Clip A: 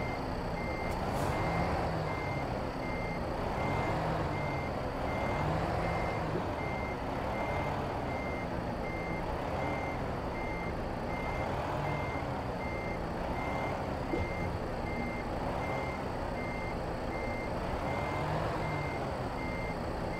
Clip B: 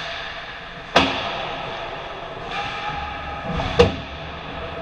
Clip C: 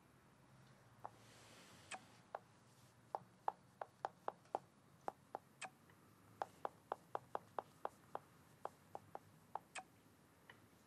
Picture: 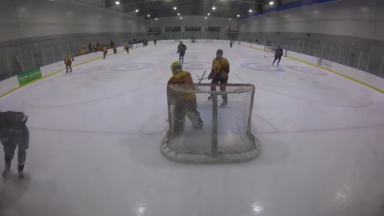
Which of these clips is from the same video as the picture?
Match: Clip B